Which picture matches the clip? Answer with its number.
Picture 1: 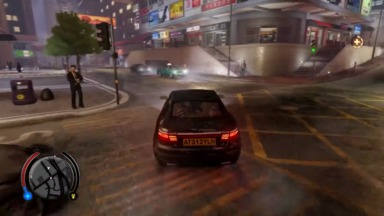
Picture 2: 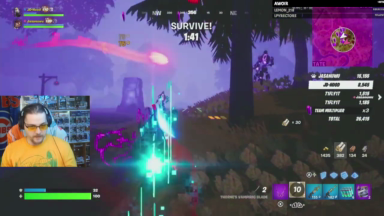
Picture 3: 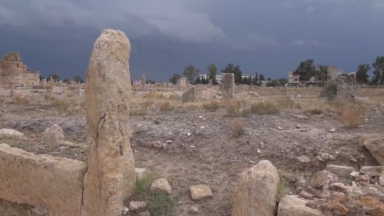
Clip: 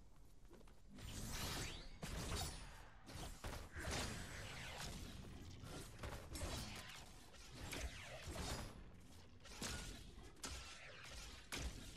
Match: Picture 2